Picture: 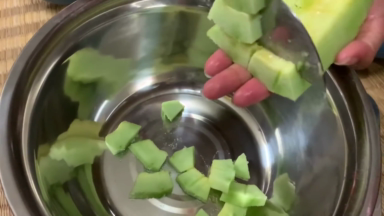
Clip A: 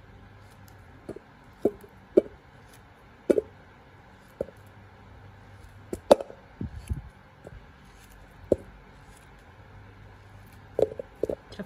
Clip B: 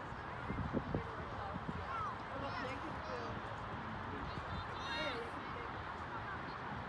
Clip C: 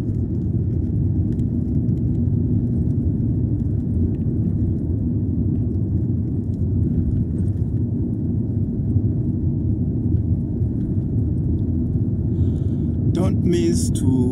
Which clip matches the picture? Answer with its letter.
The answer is A